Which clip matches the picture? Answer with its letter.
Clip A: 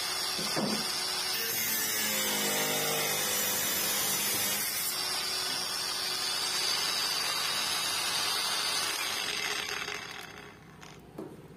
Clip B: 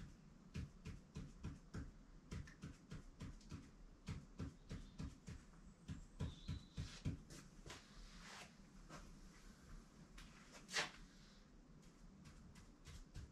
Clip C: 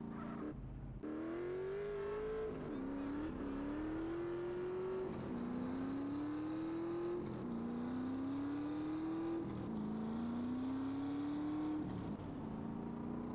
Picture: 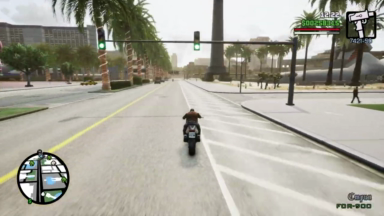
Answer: C